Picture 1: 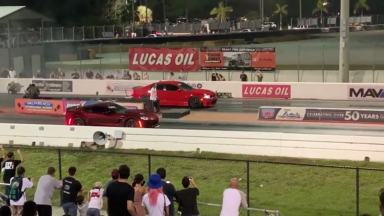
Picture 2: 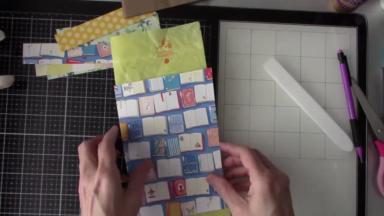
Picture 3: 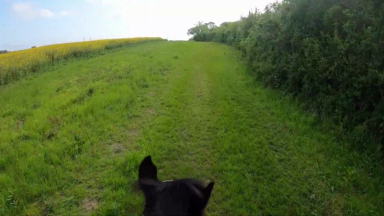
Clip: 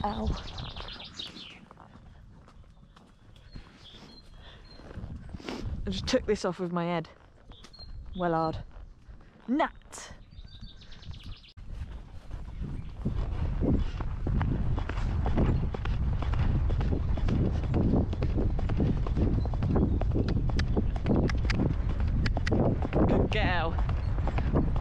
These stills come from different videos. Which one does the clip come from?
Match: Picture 3